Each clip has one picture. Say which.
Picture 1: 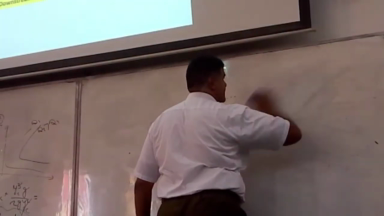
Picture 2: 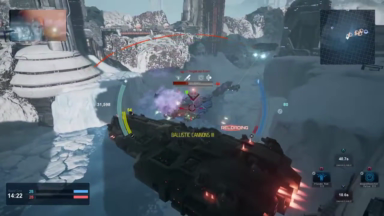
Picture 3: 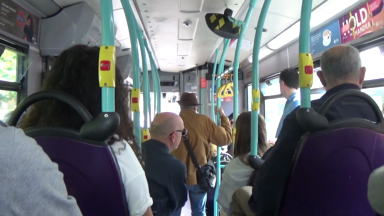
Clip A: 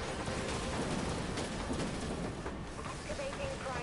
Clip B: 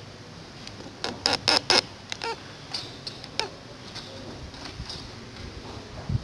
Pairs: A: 2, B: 1